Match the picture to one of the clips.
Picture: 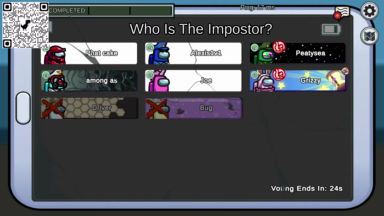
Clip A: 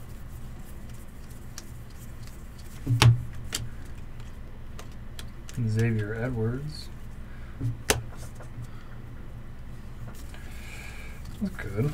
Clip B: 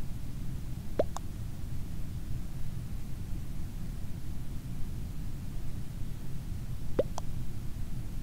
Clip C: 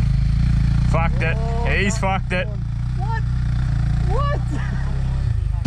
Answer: B